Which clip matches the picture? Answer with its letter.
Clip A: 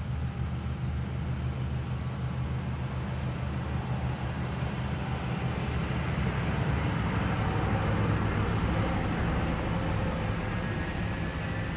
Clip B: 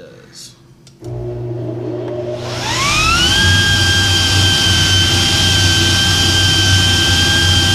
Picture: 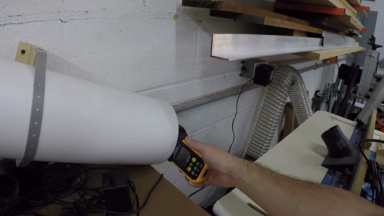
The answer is B